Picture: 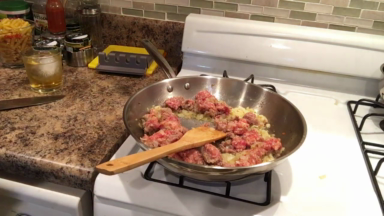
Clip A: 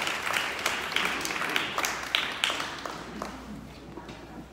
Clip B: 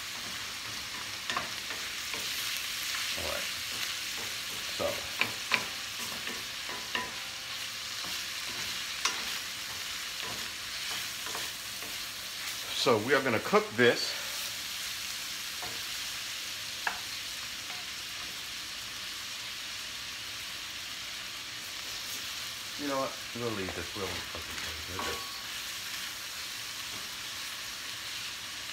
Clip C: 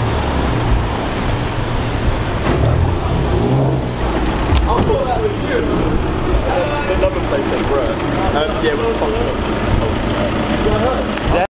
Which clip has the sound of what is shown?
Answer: B